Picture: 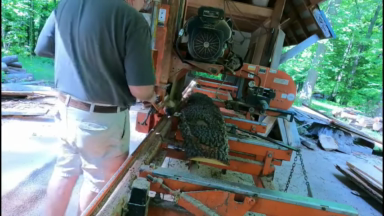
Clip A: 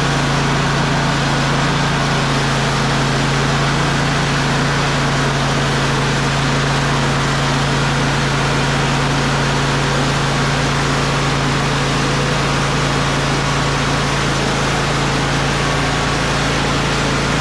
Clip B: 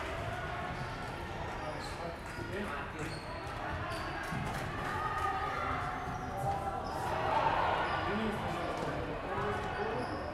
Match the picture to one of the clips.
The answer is A